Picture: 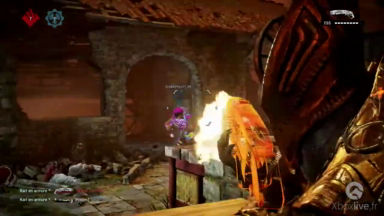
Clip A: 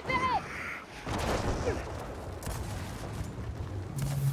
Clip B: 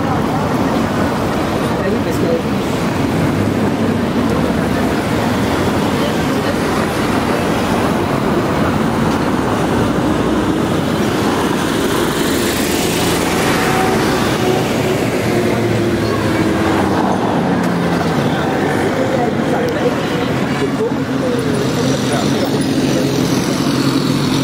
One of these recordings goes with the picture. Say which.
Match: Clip A